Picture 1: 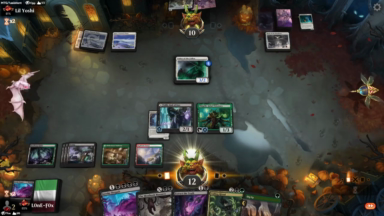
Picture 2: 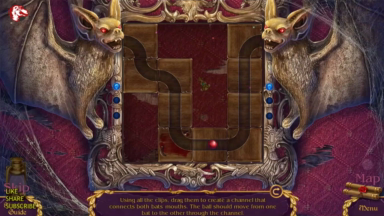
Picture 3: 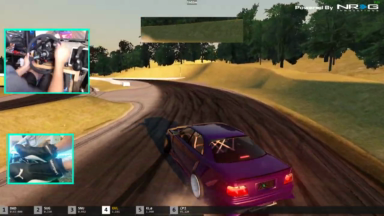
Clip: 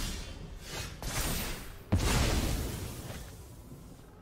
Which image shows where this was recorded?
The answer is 1